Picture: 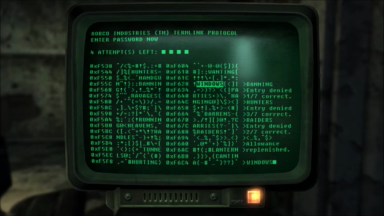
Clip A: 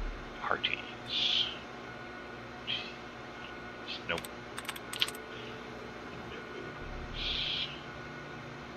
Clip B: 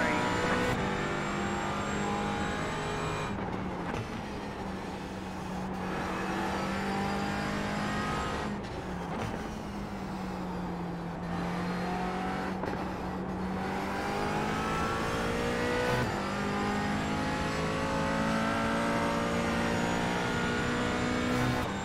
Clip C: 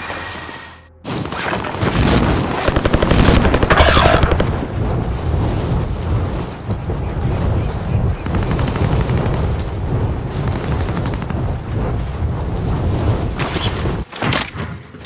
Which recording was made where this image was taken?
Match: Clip A